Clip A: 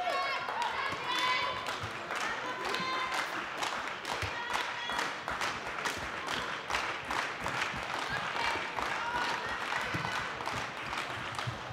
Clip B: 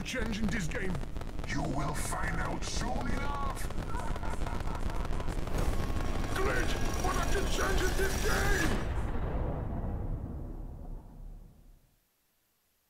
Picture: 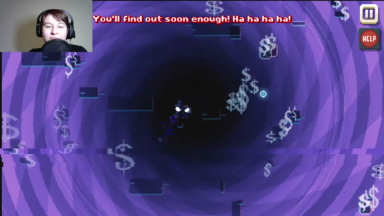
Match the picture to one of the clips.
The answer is B